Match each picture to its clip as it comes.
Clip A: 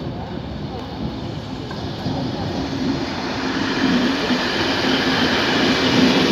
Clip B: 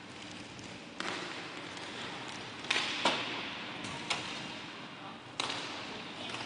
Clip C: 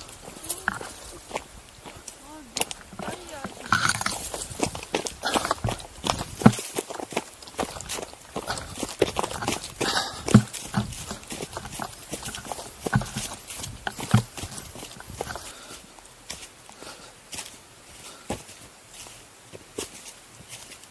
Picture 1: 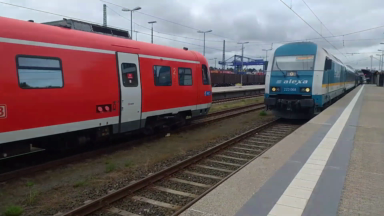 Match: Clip A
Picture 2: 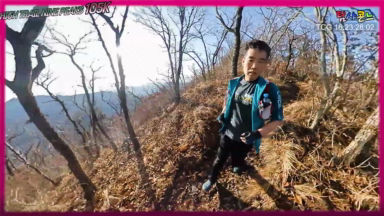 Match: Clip C